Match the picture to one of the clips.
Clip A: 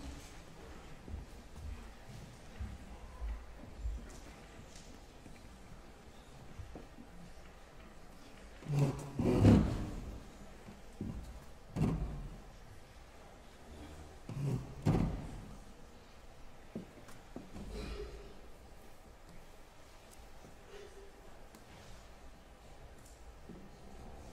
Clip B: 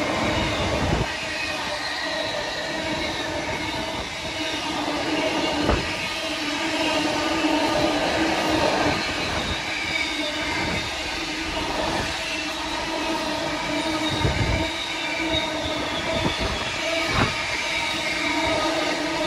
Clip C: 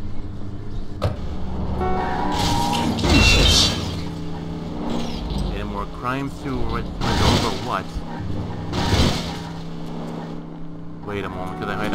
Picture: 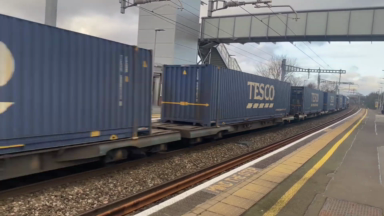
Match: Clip B